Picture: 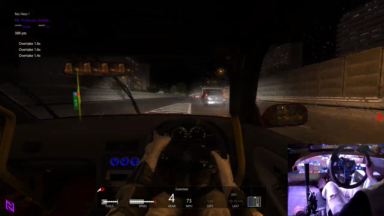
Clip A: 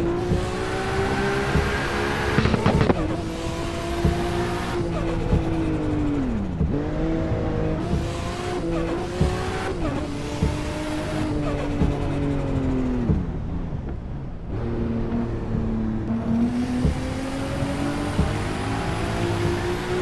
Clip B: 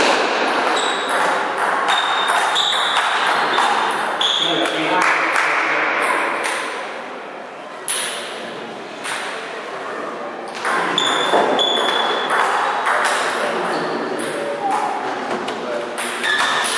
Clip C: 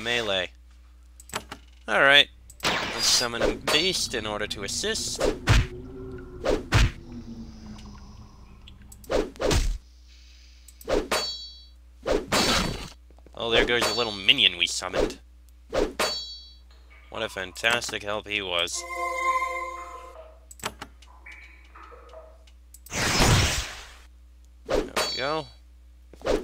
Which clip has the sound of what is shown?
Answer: A